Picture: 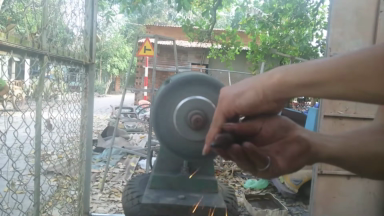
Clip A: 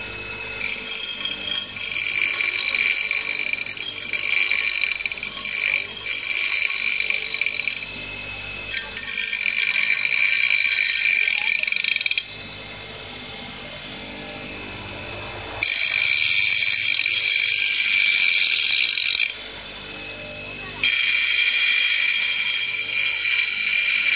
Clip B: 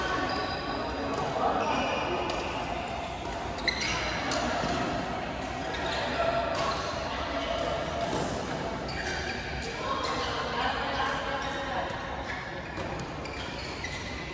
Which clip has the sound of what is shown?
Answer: A